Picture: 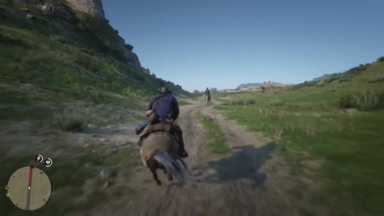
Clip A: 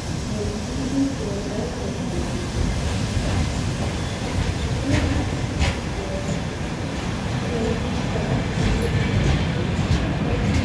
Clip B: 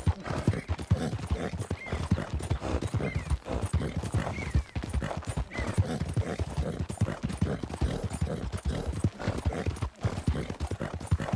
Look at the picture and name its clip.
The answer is B